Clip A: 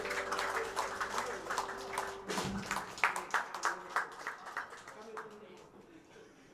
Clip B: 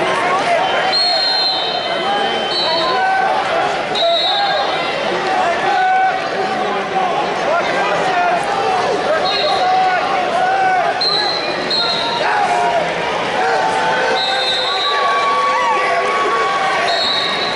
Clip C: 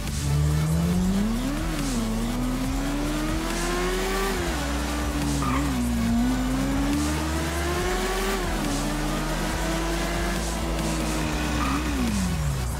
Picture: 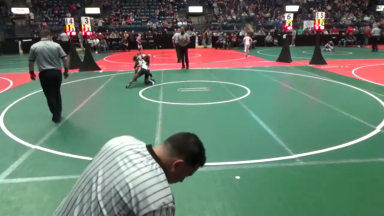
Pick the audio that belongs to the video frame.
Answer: B